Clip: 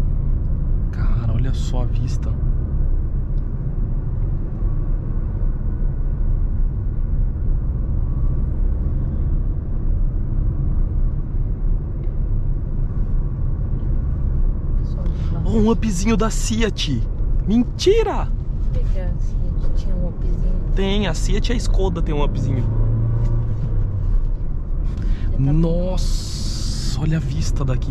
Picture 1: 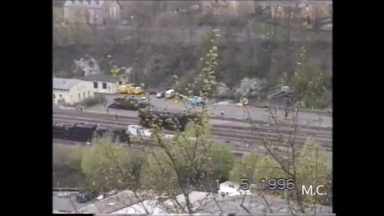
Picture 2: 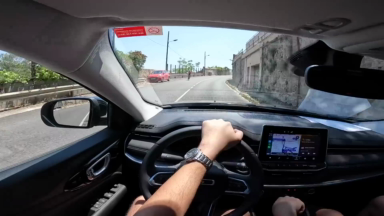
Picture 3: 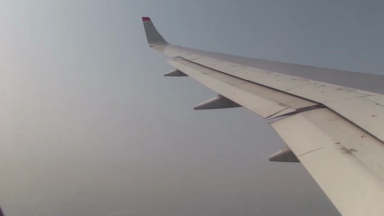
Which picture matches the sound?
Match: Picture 2